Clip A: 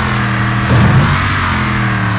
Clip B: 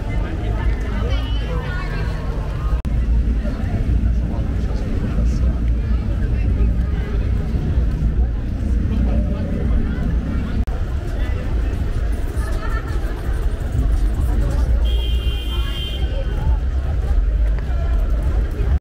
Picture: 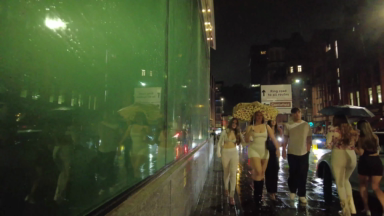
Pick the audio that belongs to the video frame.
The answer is B